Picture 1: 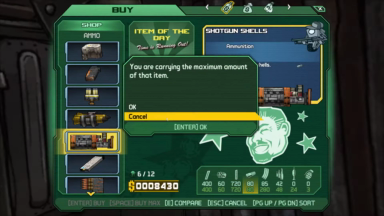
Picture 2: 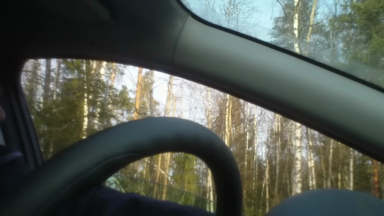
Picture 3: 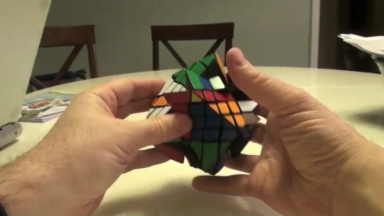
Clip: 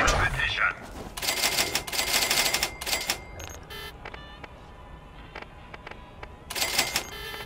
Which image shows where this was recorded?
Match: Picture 1